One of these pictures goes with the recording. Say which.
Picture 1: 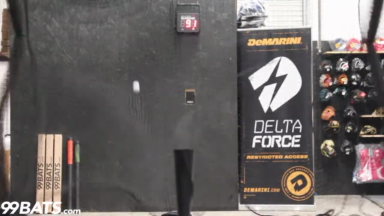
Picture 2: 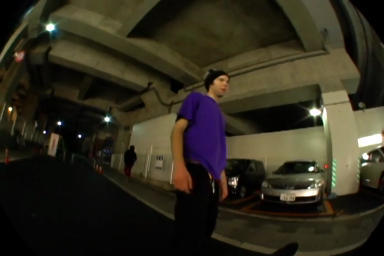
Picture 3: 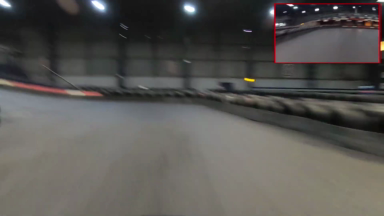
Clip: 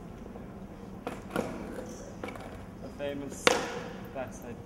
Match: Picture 2